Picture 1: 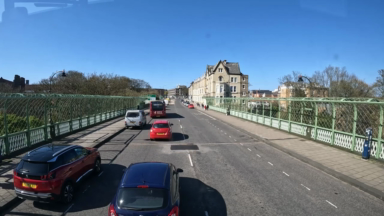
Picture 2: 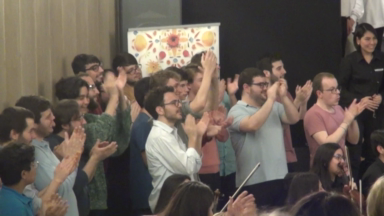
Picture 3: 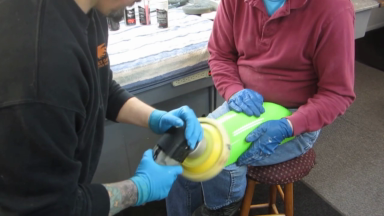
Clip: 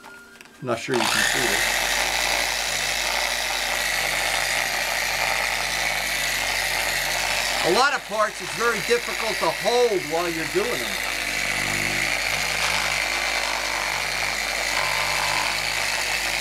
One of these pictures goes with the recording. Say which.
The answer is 3